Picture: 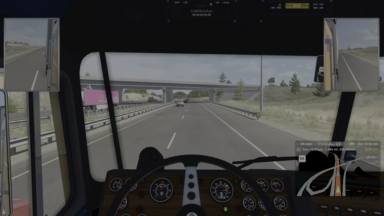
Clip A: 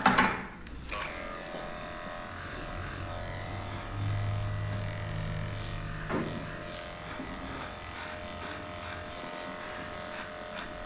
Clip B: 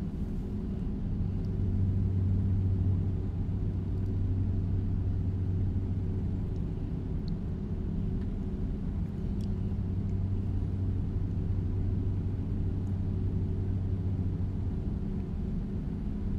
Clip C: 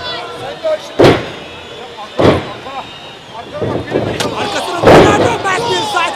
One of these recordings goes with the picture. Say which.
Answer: B